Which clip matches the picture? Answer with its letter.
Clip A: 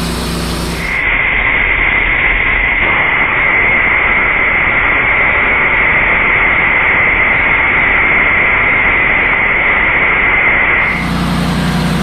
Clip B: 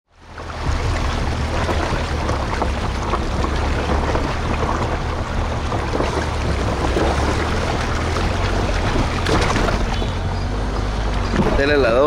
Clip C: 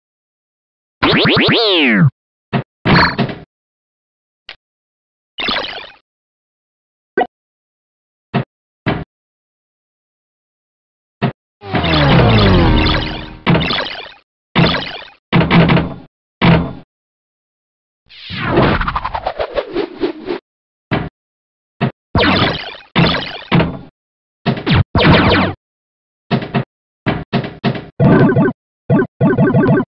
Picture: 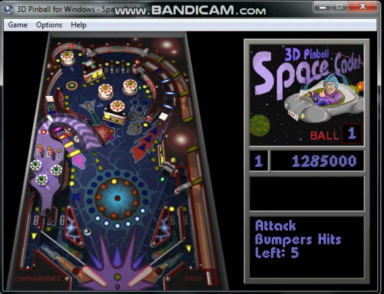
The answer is C